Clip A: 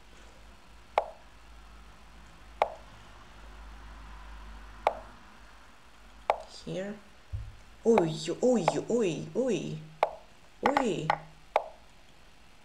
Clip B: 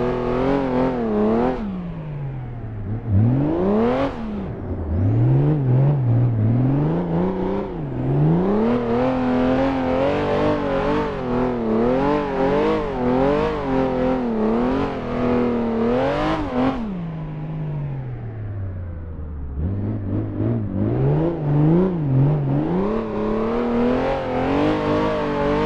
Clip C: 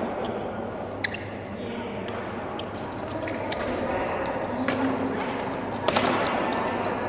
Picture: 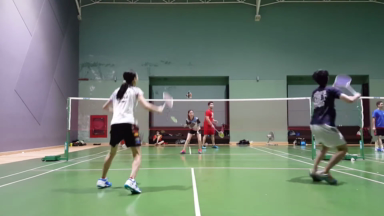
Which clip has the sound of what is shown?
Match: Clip C